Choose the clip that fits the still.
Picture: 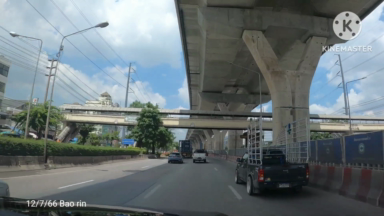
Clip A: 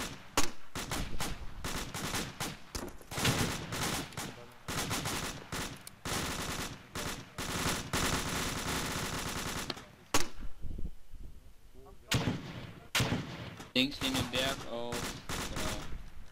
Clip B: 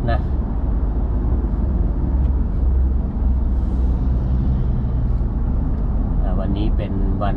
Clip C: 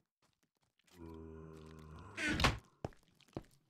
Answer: B